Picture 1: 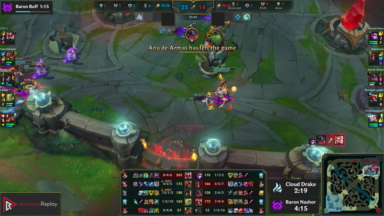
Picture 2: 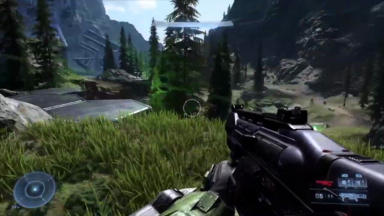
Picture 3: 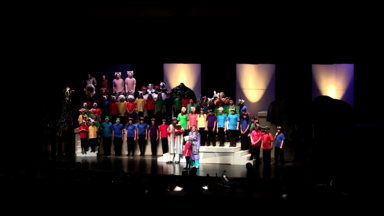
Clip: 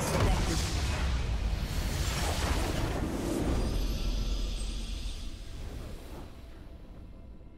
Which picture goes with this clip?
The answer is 1